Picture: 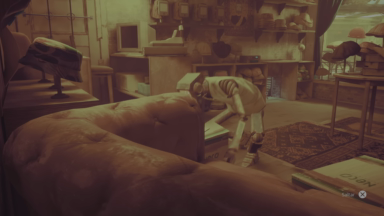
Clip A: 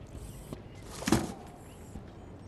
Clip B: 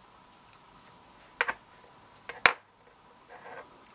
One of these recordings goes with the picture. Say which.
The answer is A